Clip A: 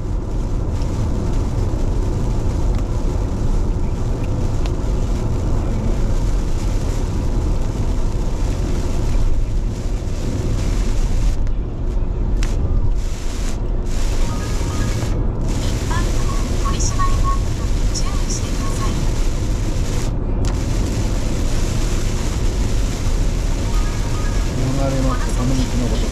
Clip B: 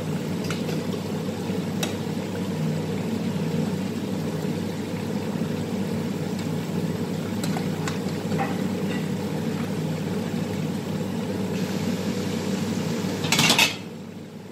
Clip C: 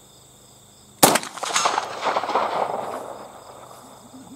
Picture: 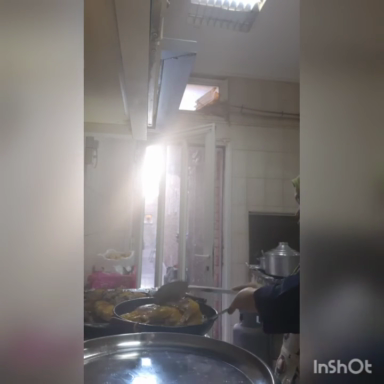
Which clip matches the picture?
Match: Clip B